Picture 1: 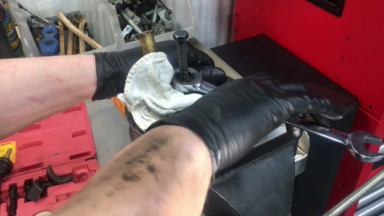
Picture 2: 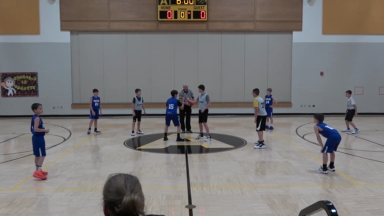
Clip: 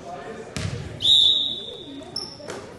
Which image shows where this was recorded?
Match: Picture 2